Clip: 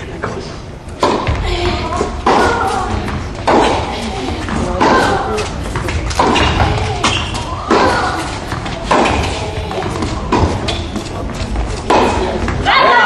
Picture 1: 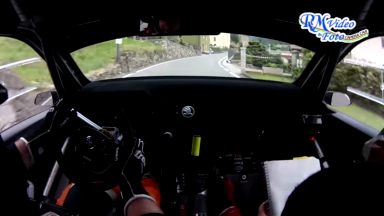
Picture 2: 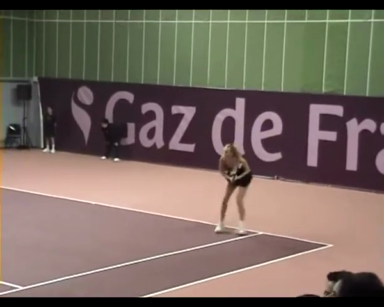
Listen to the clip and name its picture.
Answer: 2